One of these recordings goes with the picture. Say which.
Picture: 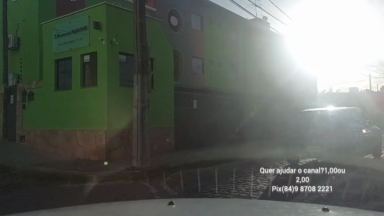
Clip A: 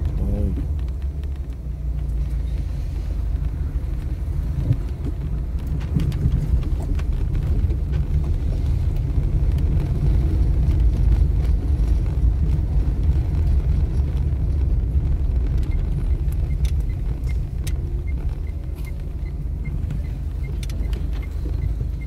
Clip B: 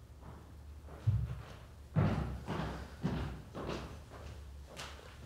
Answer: A